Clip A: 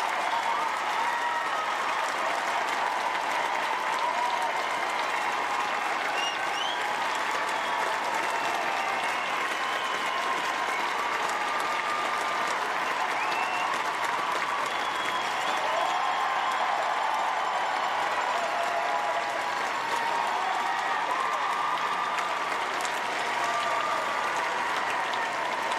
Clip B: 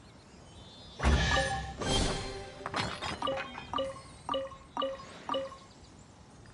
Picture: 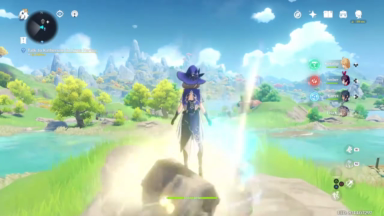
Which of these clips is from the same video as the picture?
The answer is B